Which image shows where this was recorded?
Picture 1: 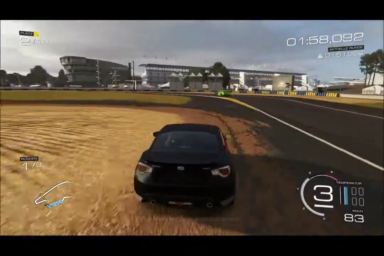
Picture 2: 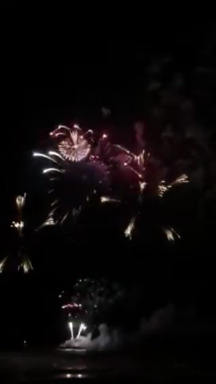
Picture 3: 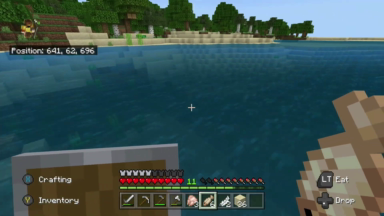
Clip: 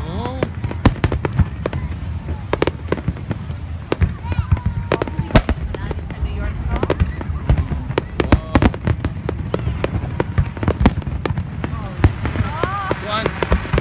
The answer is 2